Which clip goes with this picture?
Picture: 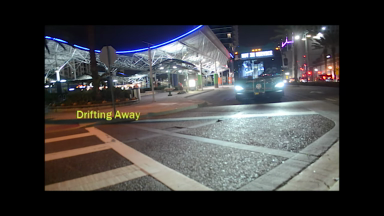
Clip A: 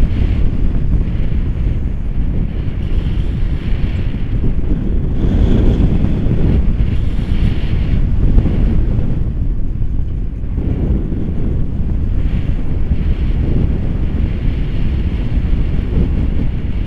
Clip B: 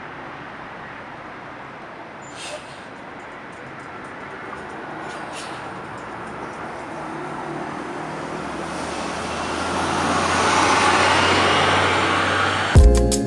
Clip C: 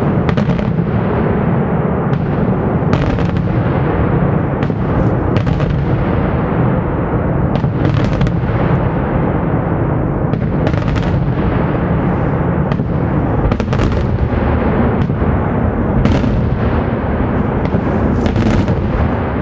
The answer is B